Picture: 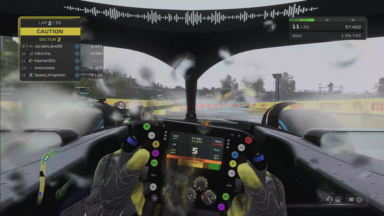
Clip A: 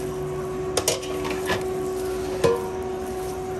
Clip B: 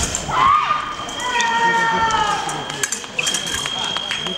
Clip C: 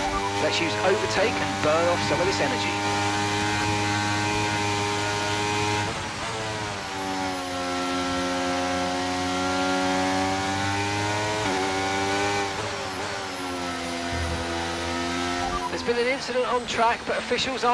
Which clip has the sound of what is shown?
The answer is C